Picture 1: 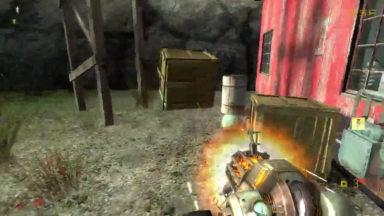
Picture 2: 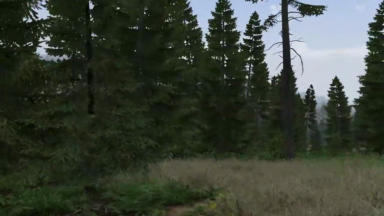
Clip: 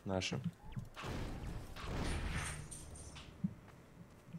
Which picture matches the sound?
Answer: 1